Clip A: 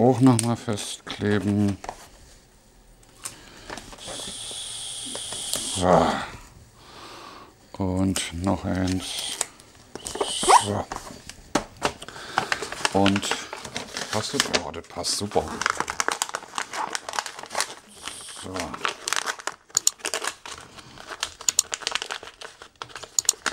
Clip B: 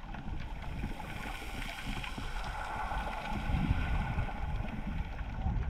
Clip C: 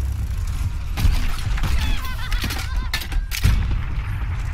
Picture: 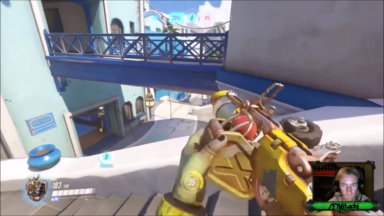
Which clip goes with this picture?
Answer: C